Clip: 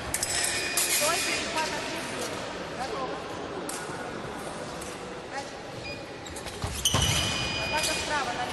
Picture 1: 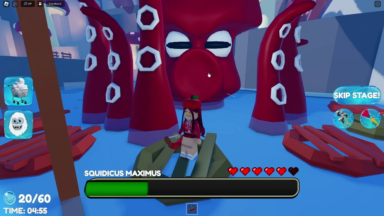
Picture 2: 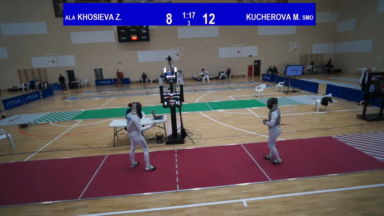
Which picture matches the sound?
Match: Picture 2